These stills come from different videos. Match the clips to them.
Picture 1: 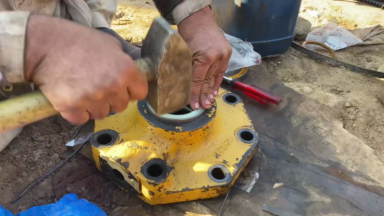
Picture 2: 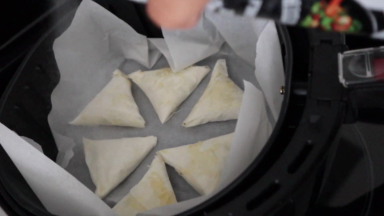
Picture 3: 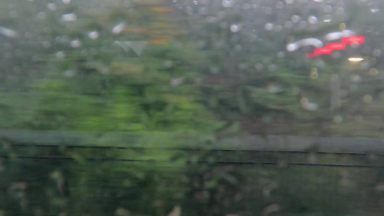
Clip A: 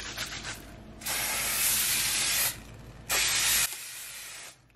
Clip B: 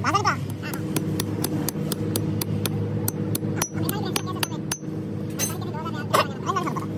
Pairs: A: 2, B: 1